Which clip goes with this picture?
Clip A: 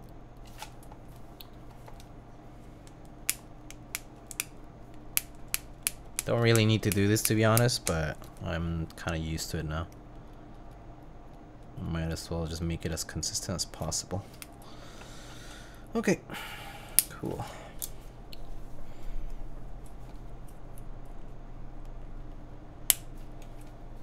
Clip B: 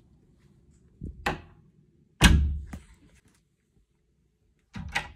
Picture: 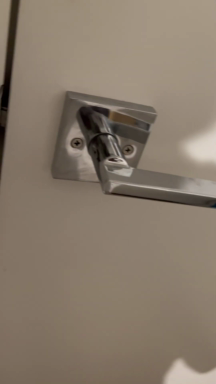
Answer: B